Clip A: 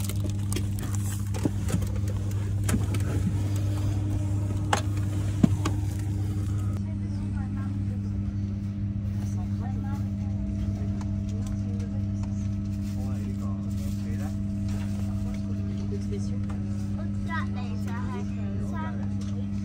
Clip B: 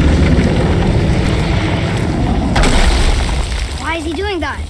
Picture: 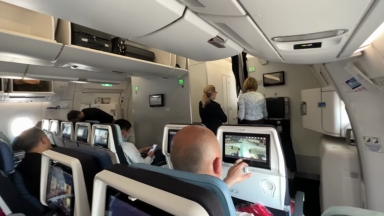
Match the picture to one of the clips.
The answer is A